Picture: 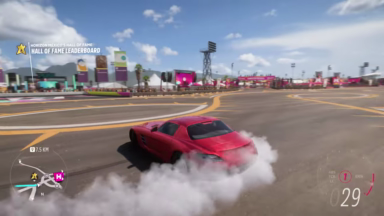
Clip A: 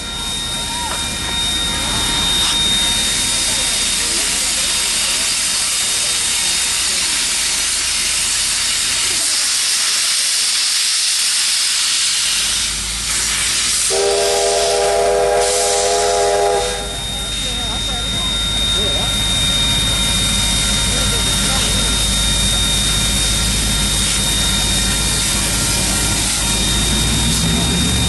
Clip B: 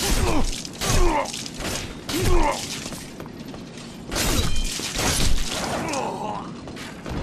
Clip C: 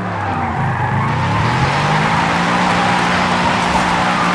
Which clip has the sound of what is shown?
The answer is C